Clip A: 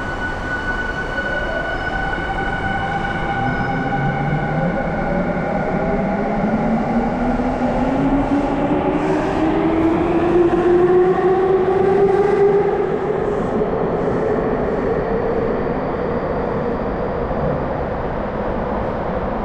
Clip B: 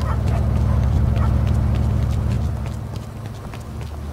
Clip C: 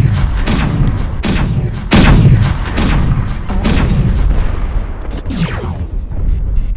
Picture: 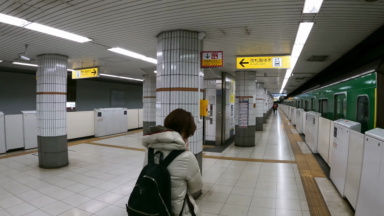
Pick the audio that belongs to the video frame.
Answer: A